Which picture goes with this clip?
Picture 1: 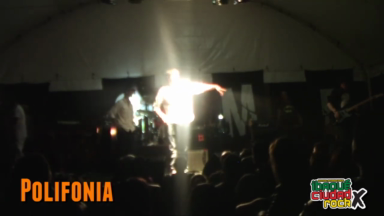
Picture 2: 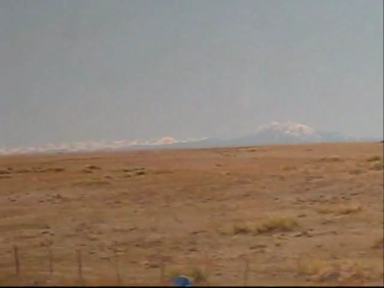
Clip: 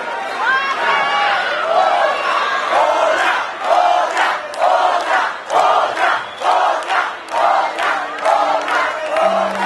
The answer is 1